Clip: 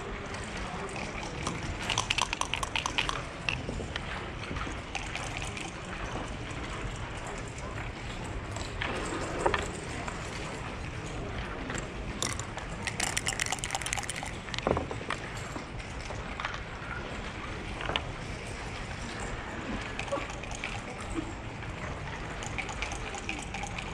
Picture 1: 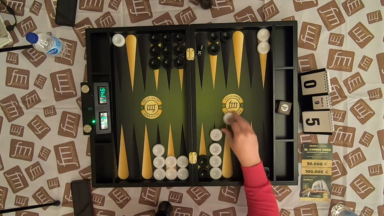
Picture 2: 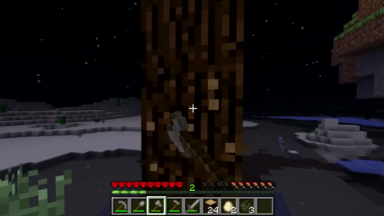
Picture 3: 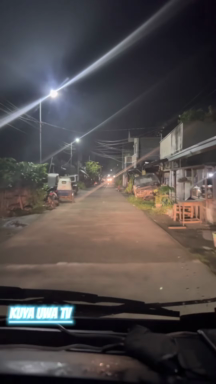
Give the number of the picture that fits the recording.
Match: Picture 1